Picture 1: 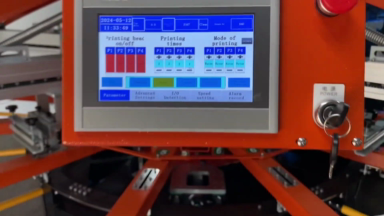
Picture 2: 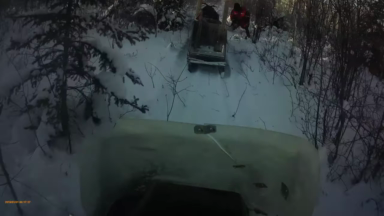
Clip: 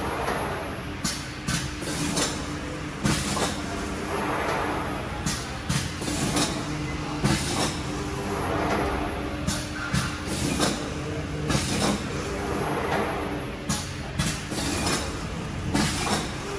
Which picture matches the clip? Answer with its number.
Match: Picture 1